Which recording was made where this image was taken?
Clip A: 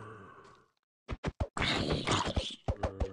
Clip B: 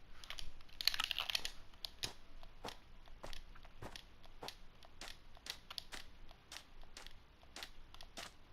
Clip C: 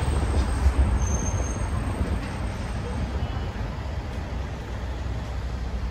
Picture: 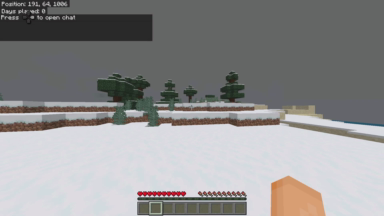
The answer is B